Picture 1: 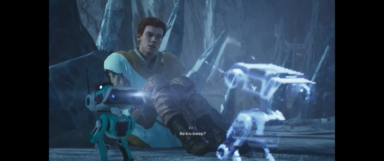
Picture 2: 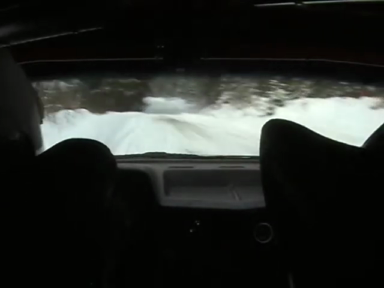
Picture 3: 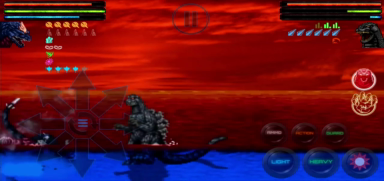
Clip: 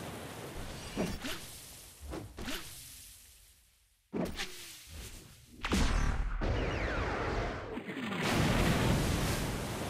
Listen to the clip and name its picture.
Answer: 3